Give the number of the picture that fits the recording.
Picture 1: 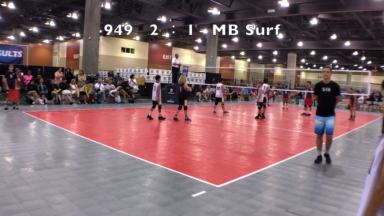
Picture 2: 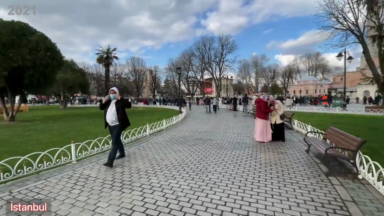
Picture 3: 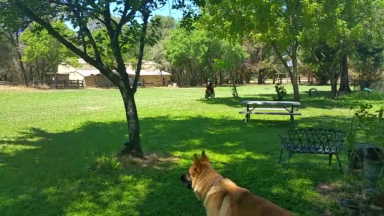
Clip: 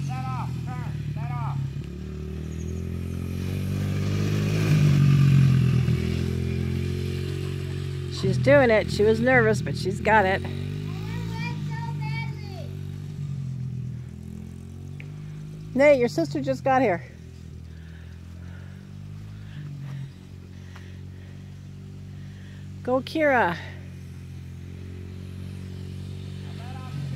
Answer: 3